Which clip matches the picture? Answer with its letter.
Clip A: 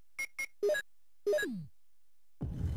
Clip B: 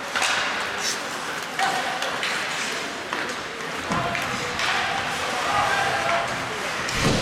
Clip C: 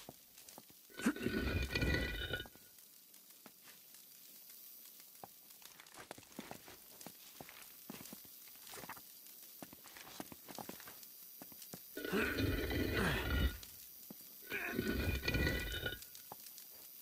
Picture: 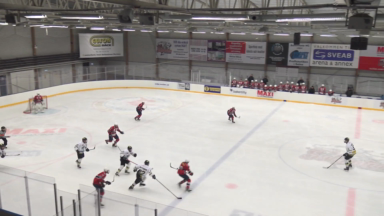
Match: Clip B